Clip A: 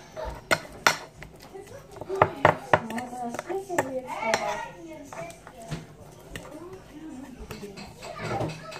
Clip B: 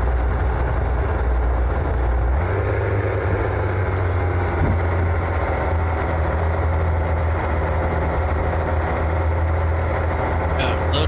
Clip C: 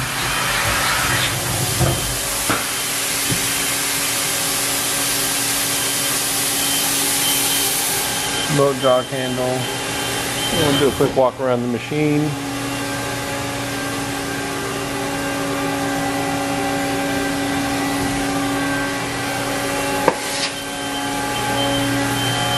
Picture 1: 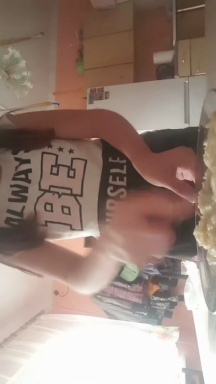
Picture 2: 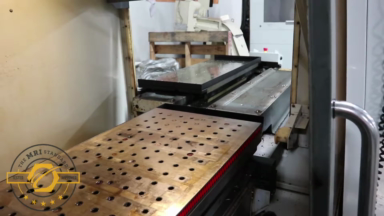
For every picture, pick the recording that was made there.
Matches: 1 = A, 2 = C